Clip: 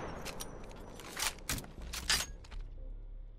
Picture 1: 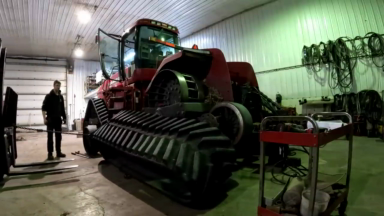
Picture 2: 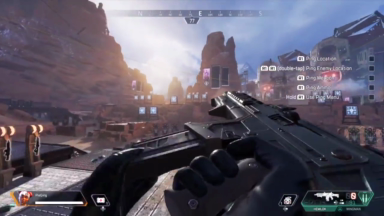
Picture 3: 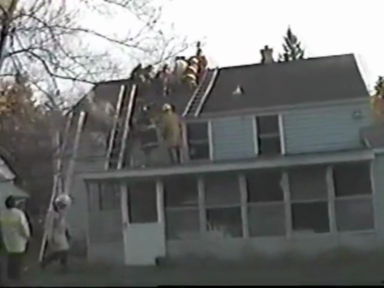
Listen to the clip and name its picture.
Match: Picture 2